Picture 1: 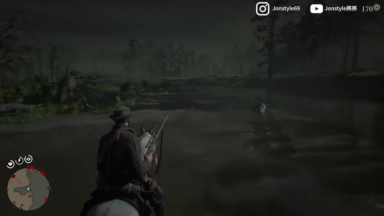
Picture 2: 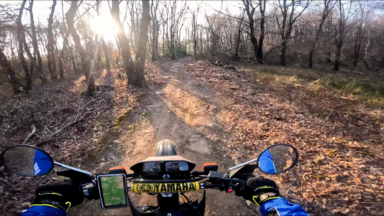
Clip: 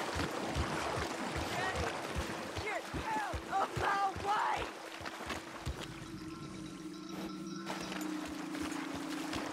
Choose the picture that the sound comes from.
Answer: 1